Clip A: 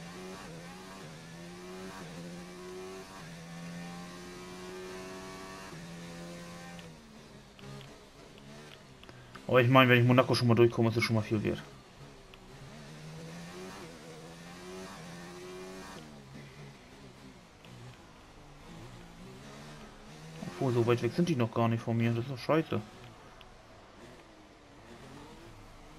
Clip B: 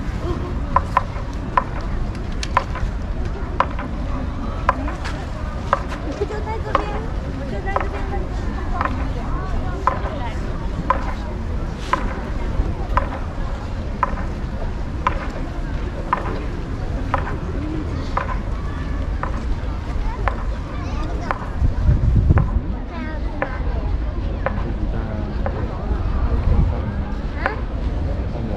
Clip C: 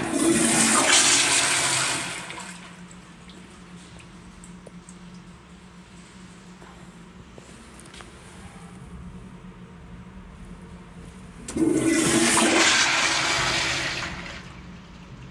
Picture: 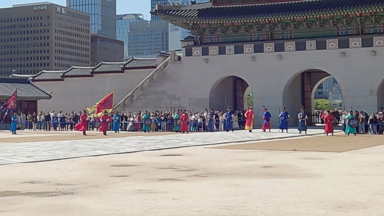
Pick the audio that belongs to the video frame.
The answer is B